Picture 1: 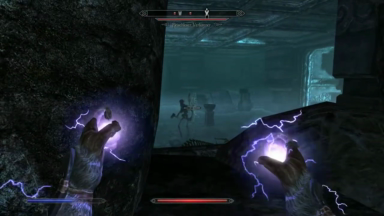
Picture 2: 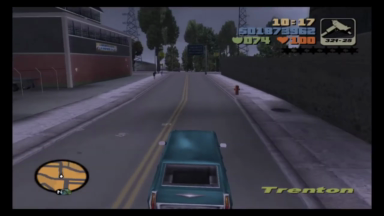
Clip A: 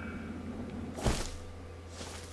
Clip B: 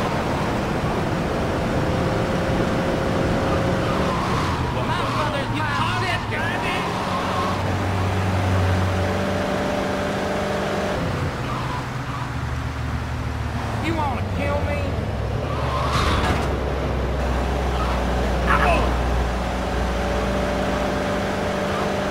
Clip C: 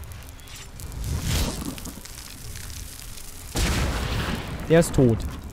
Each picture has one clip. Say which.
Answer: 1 C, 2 B